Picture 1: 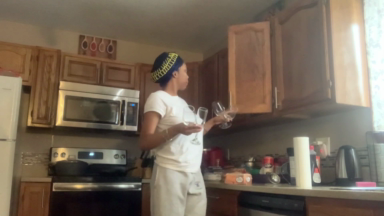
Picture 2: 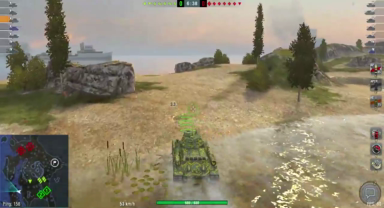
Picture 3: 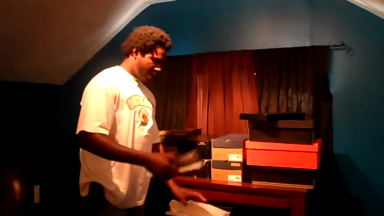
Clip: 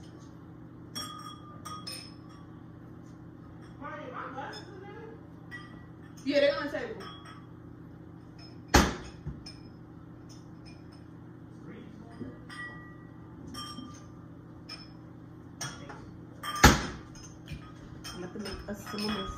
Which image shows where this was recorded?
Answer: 1